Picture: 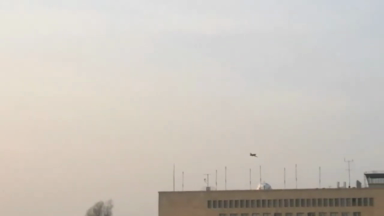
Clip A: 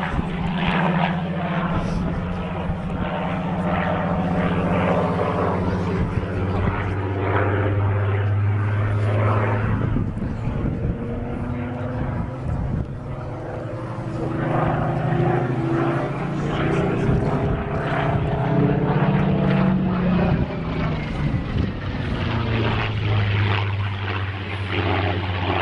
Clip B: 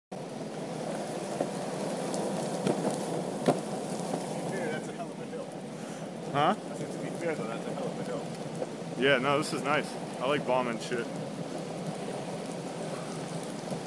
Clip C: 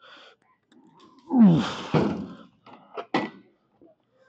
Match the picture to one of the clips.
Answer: A